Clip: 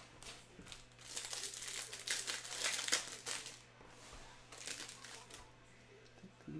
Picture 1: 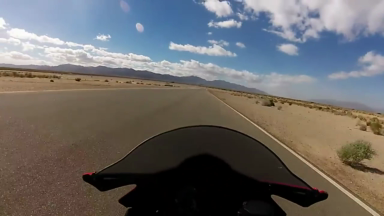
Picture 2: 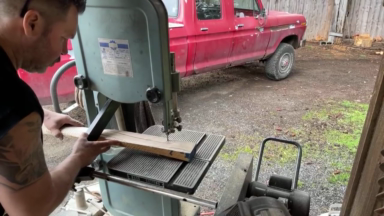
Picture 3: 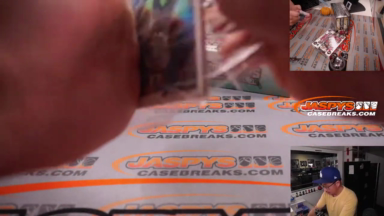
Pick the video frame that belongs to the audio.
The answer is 3